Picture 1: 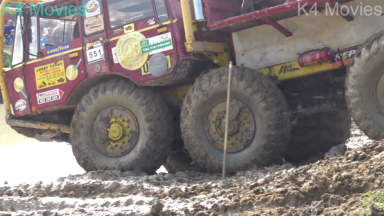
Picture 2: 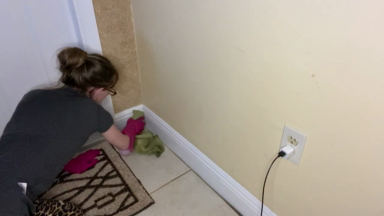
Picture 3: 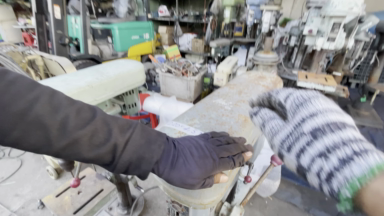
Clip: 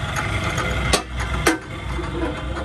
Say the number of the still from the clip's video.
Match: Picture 3